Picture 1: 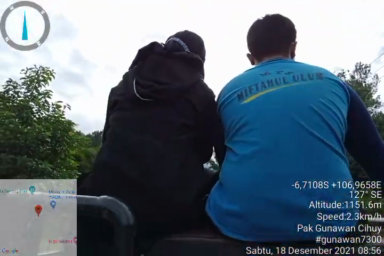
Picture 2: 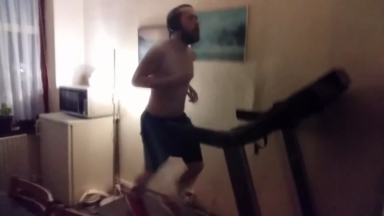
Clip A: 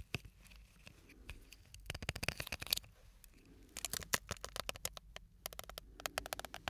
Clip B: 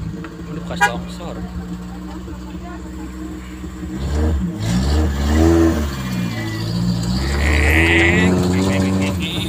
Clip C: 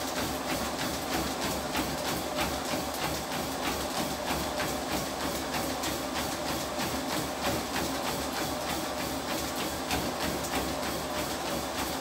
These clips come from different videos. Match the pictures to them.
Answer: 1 B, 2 C